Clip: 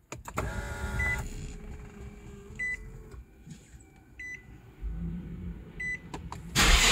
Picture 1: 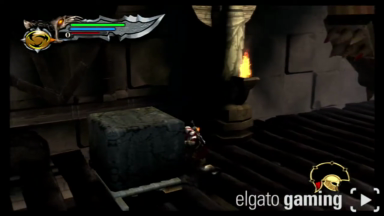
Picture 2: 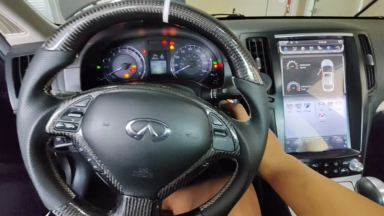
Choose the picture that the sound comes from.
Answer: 2